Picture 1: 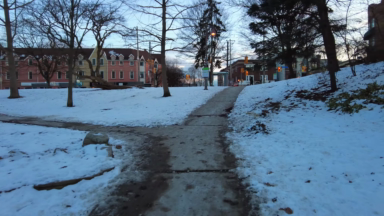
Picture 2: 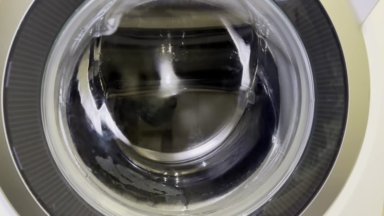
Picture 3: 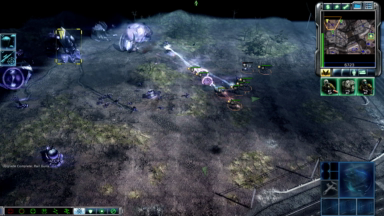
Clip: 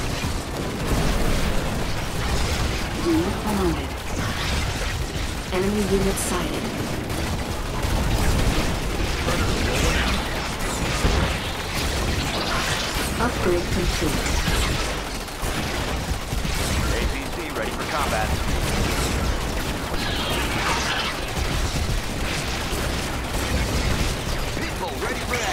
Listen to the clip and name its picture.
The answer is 3